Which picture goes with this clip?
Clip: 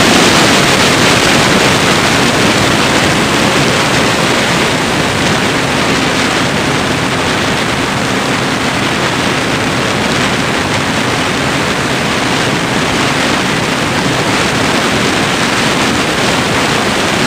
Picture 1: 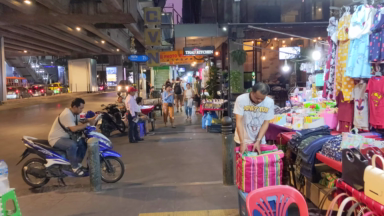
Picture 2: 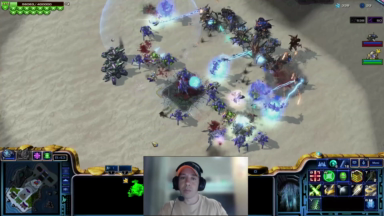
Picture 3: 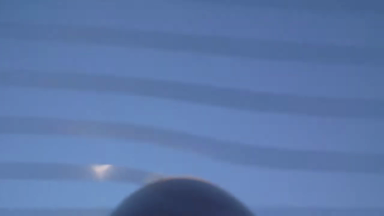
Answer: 3